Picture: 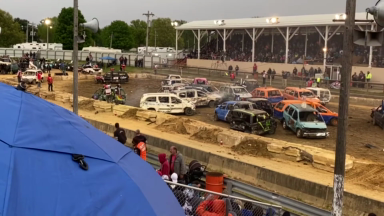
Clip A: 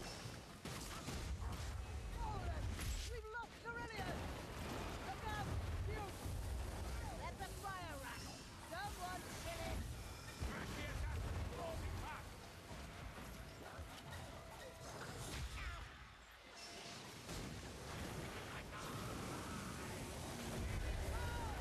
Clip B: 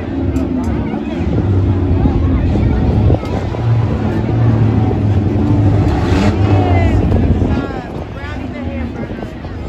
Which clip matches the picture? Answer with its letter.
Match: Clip B